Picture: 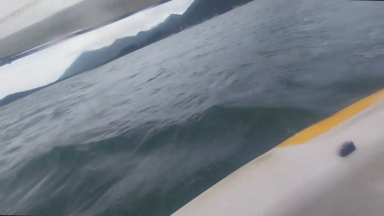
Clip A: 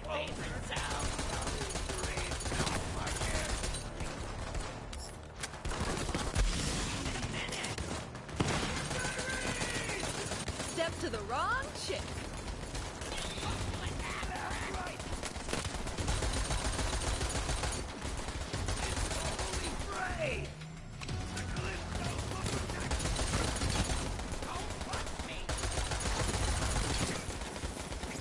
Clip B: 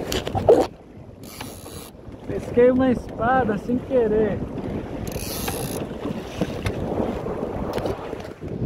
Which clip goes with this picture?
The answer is B